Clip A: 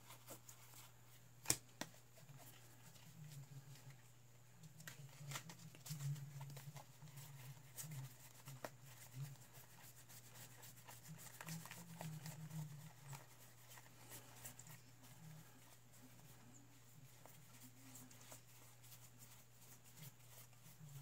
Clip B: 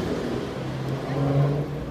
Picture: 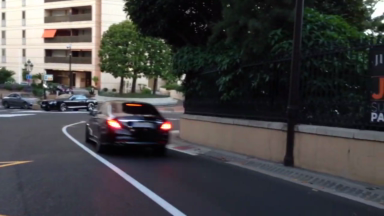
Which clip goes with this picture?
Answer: B